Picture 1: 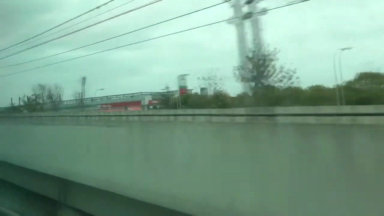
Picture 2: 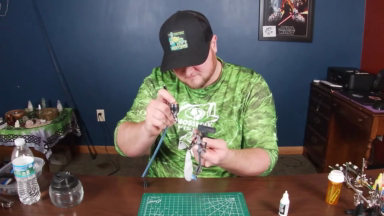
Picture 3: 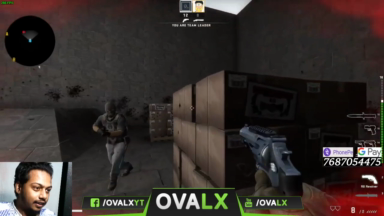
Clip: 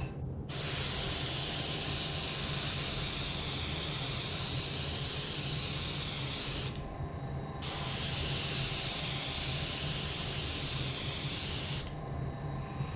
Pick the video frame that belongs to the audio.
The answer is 2